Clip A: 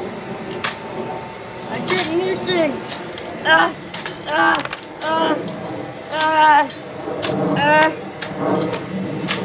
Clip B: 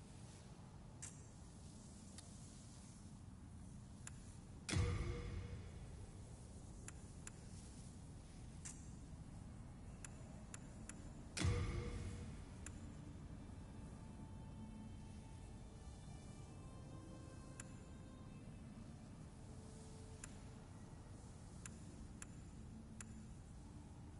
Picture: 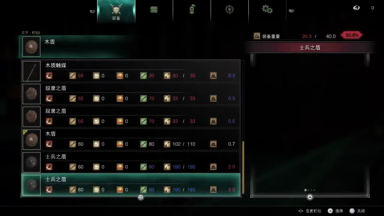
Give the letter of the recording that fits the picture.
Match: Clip B